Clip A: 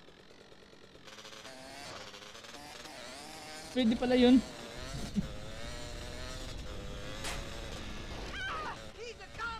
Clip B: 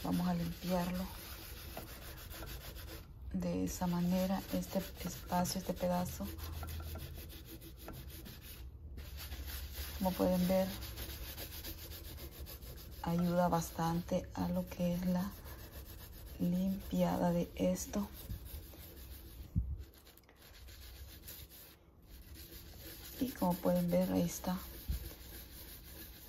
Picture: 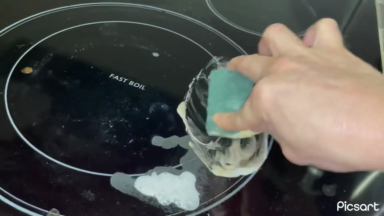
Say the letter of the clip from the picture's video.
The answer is B